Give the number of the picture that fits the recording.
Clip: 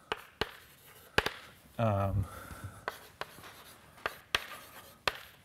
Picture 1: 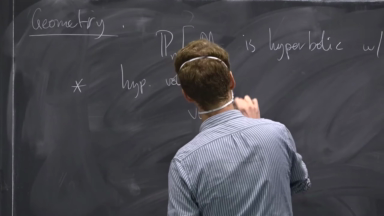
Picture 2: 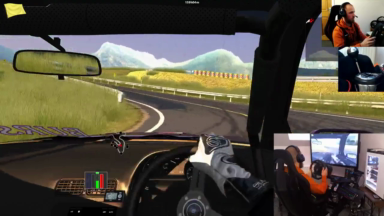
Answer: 1